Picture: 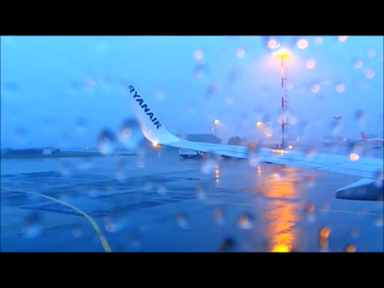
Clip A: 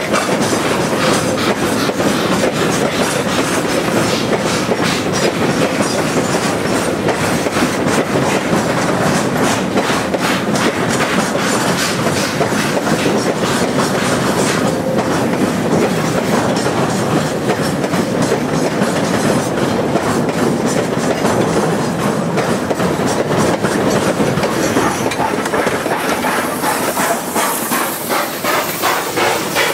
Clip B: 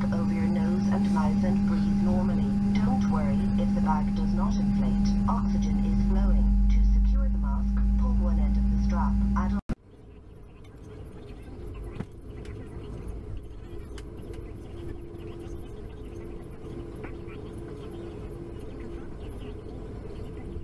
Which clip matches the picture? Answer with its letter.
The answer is B